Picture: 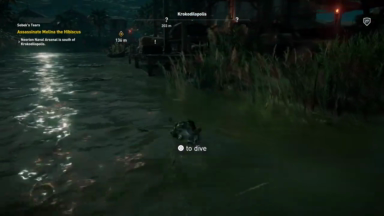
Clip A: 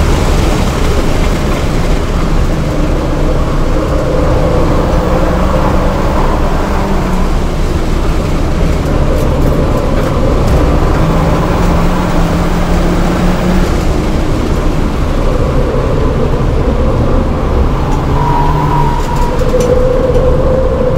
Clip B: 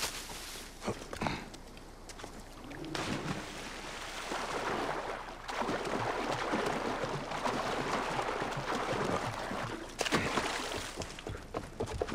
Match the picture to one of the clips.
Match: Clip B